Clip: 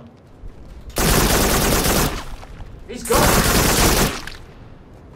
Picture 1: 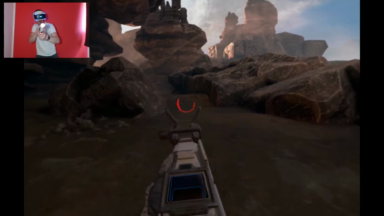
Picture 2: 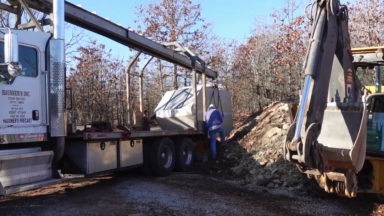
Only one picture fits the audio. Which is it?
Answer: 1